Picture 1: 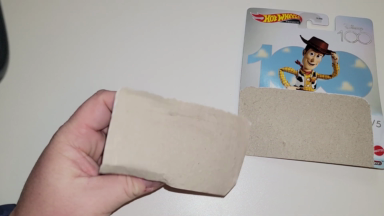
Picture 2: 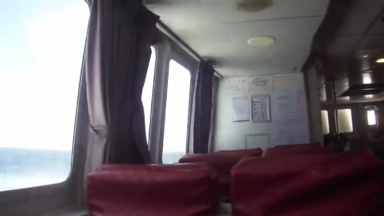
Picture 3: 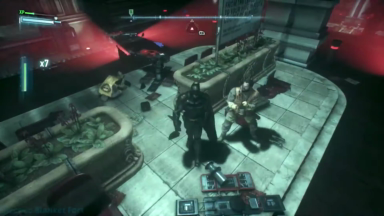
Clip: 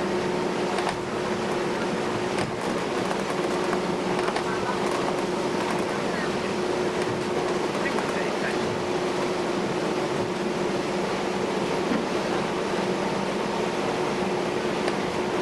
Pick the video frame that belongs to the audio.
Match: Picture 2